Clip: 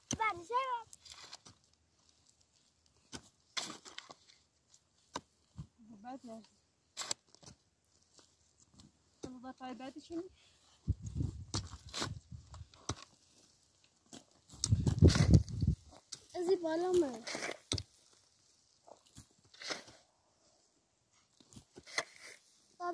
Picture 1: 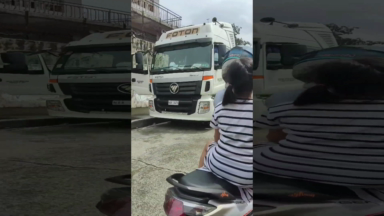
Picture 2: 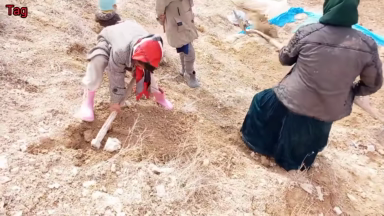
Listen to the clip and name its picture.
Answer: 2